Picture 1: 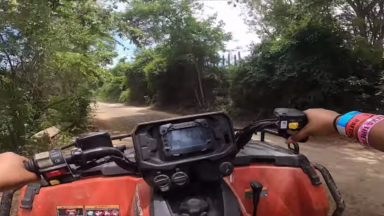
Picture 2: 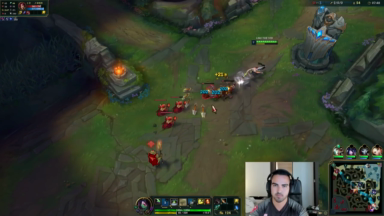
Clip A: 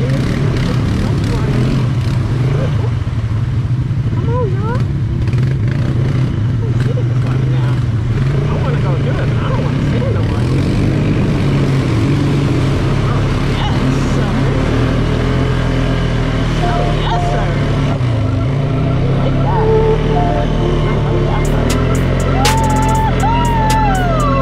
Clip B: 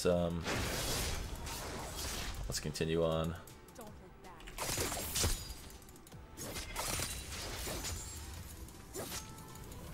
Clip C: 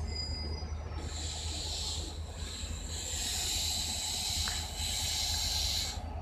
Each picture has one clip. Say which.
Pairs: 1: A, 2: B